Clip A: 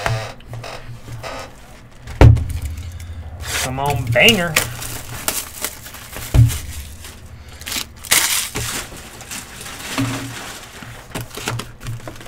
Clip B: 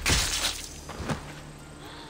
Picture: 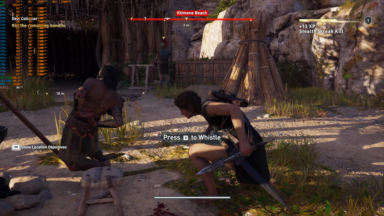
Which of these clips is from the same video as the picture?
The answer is B